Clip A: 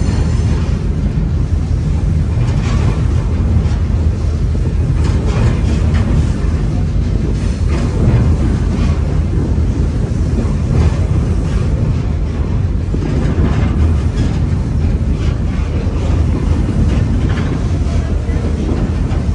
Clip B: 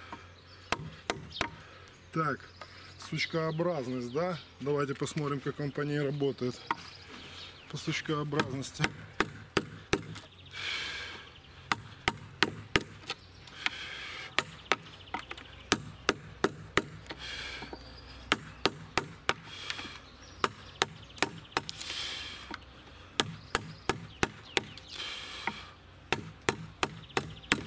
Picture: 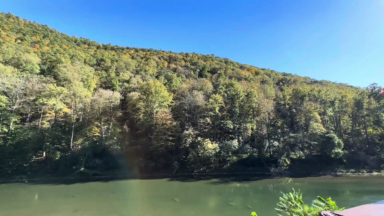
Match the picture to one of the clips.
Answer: A